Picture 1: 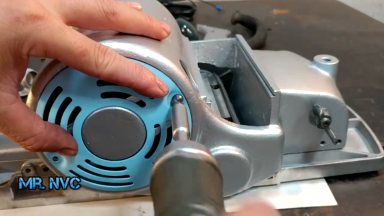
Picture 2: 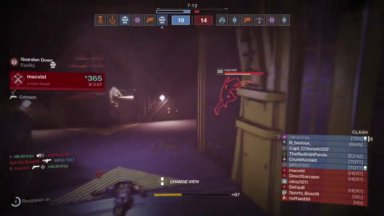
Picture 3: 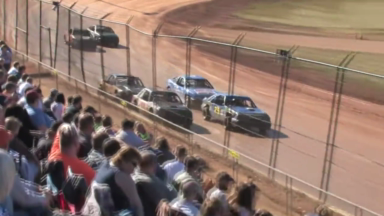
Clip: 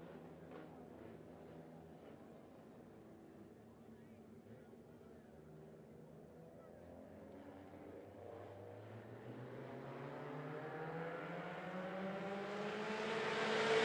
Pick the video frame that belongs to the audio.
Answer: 3